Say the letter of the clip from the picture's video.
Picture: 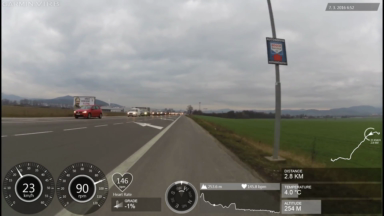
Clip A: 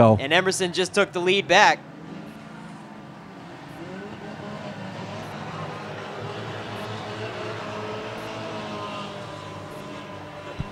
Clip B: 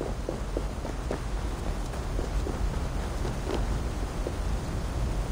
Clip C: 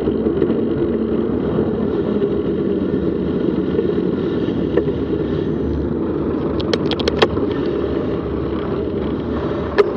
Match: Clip C